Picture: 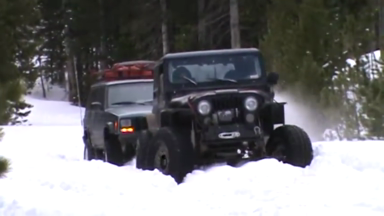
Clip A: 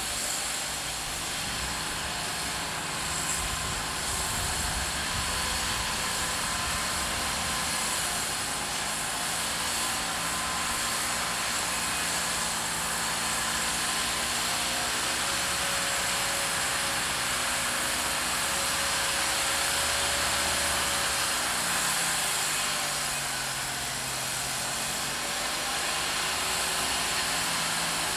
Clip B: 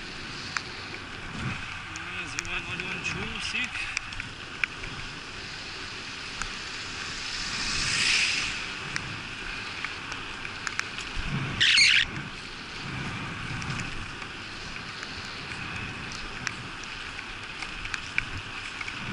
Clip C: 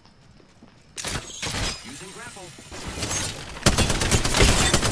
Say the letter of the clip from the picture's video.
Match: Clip A